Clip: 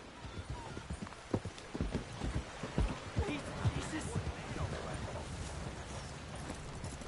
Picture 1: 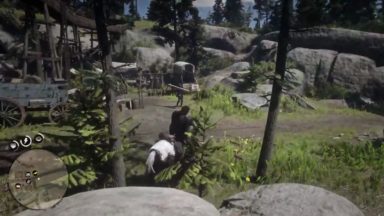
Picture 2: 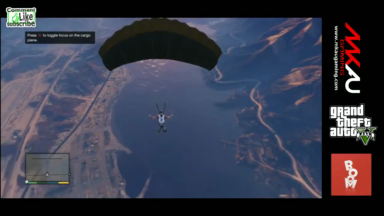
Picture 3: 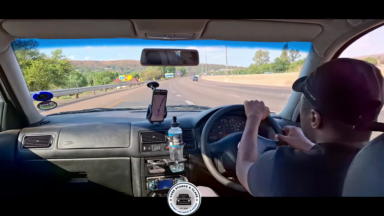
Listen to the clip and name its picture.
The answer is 1